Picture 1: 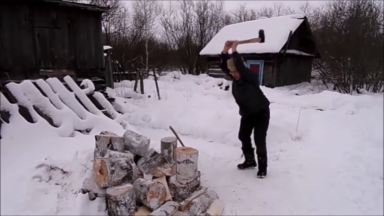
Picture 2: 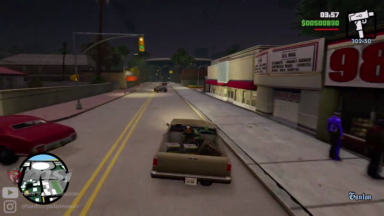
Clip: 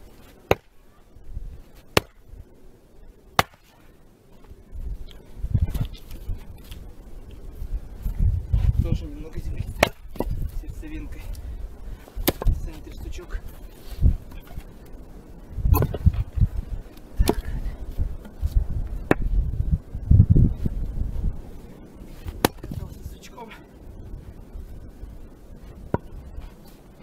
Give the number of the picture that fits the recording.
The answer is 1